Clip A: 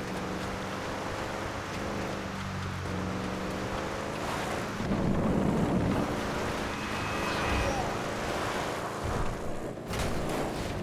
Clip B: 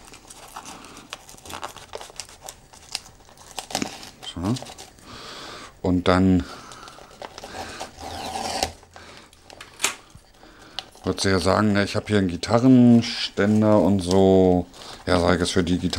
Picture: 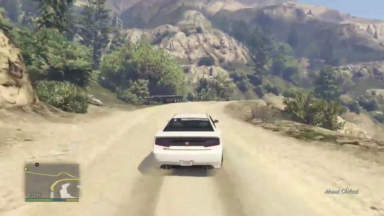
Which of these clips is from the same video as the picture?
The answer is A